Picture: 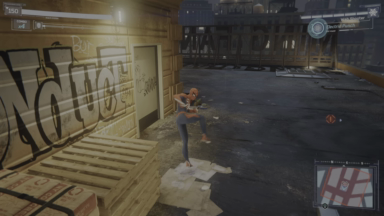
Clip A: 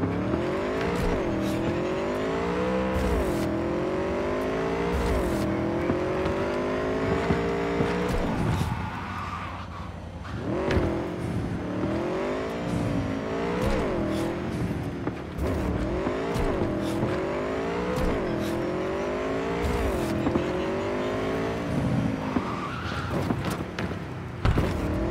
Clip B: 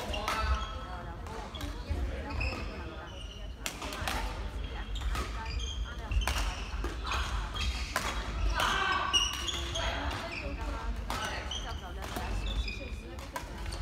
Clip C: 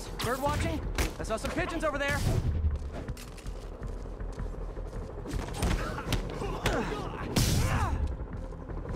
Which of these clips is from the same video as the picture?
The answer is C